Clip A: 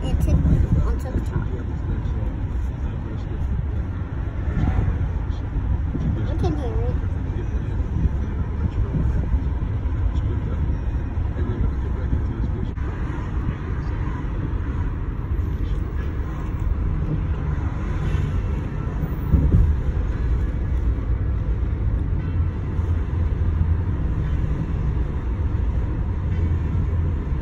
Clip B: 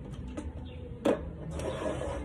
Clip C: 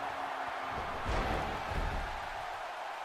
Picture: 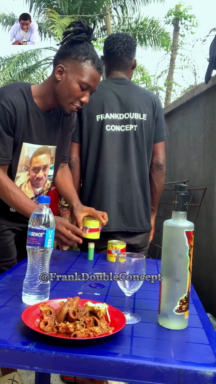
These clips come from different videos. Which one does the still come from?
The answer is B